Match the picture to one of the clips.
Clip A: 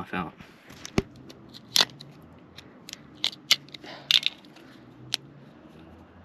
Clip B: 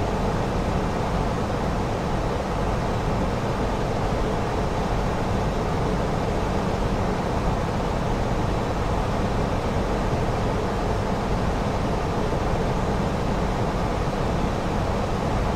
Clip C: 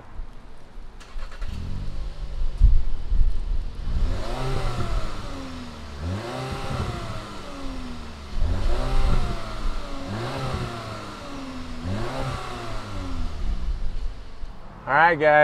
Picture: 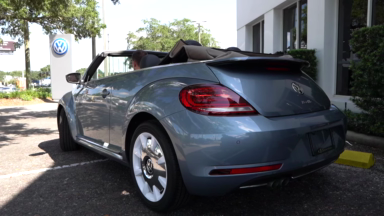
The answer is C